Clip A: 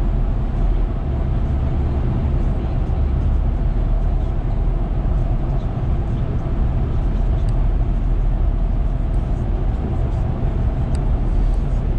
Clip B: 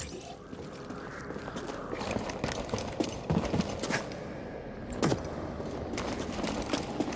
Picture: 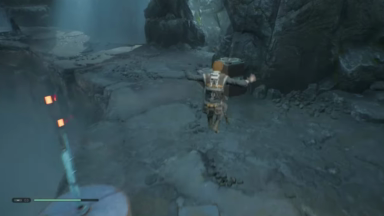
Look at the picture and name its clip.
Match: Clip B